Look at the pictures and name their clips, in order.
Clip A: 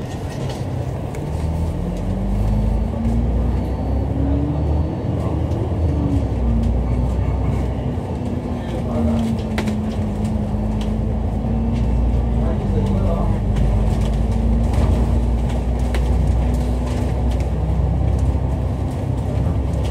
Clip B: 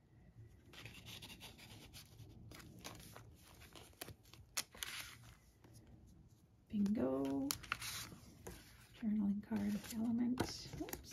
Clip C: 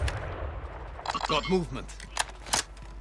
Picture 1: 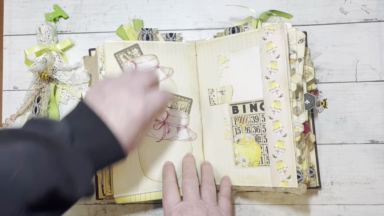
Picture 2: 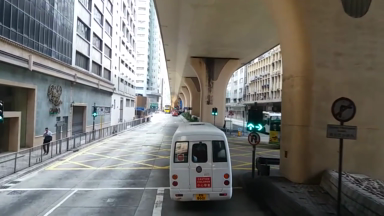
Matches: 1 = B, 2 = A